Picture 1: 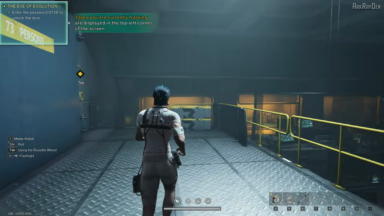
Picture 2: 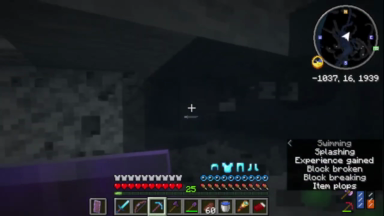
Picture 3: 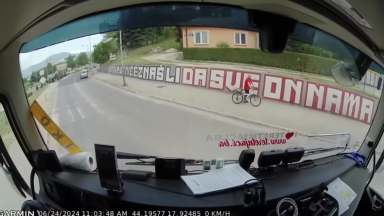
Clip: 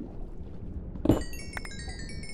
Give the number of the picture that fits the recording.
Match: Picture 2